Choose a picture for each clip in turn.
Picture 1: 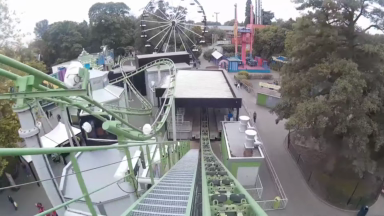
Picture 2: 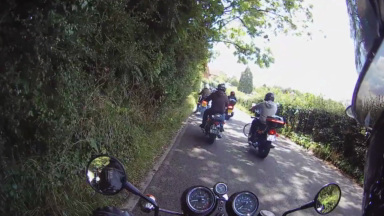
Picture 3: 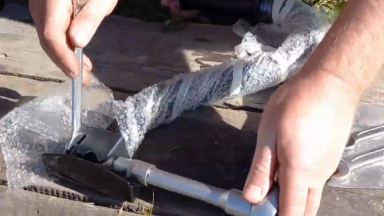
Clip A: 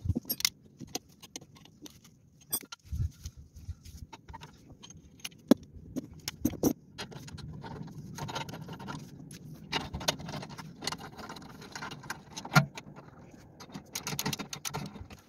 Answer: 3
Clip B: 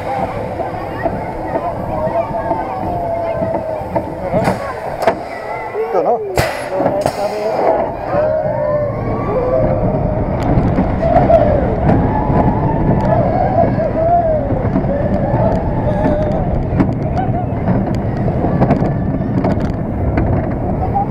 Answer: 1